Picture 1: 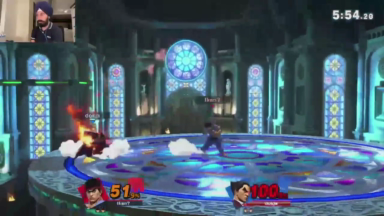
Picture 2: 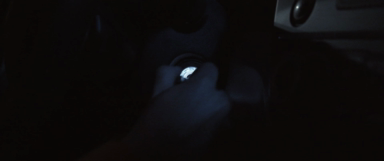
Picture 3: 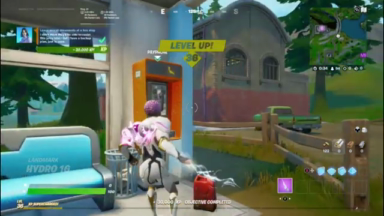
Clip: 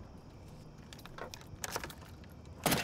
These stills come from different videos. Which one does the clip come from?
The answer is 2